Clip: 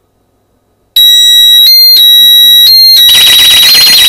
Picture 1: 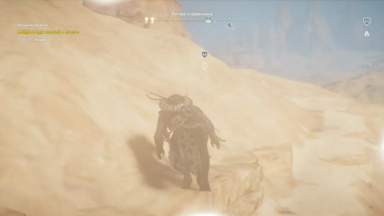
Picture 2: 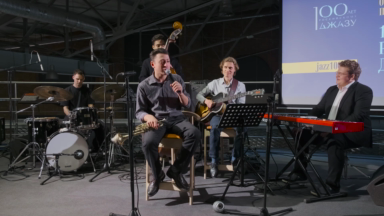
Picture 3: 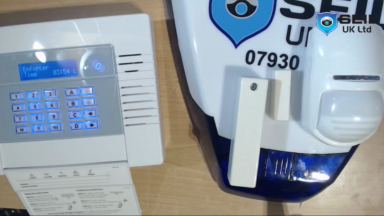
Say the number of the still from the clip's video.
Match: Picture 3